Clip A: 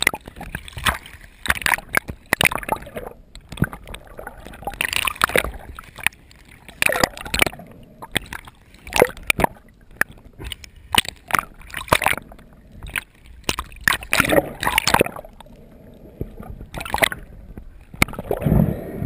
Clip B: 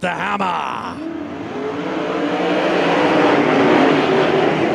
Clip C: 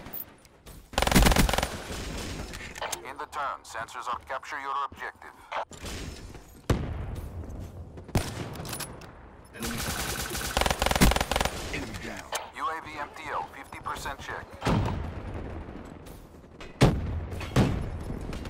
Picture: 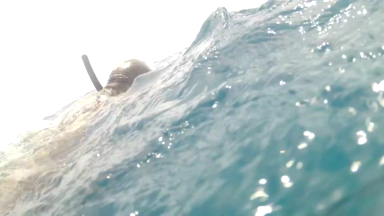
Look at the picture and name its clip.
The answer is A